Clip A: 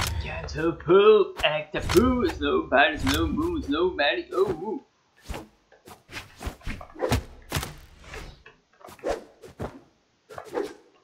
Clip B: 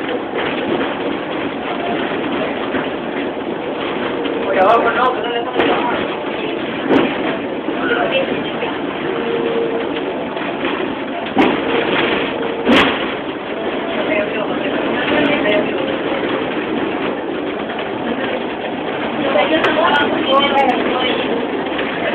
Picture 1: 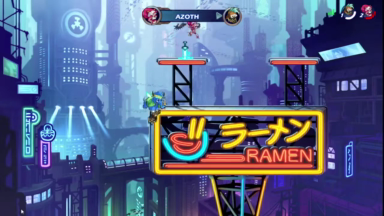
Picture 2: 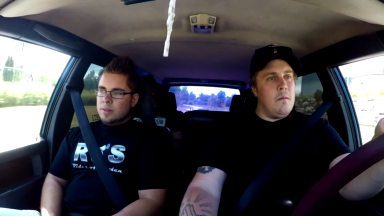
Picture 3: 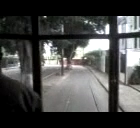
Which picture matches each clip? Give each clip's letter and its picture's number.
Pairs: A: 1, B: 3